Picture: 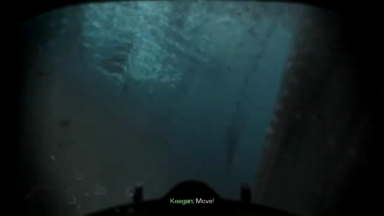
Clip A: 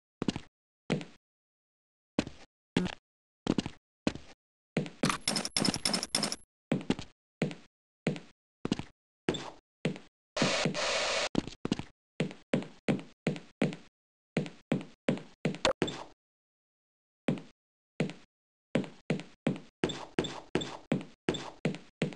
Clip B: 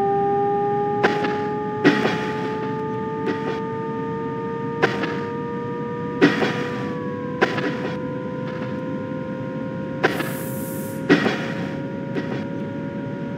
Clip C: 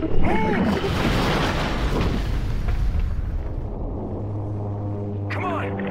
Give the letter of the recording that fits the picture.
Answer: C